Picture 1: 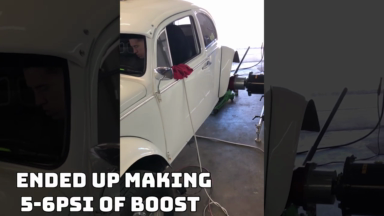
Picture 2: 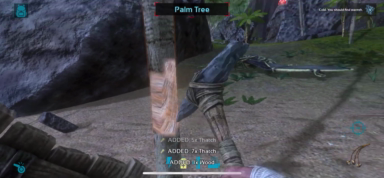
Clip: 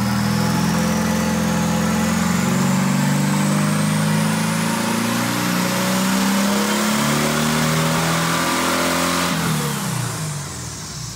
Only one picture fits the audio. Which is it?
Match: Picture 1